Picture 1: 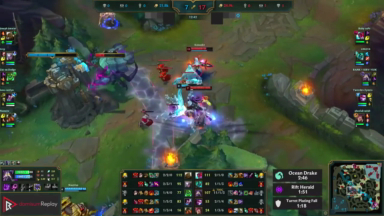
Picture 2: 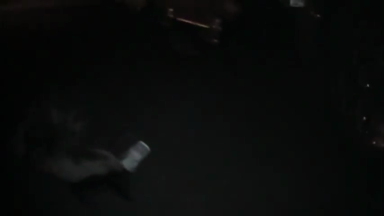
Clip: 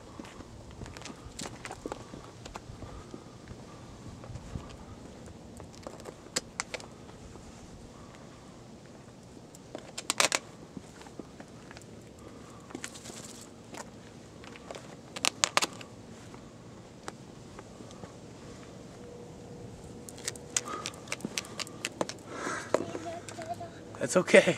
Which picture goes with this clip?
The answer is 2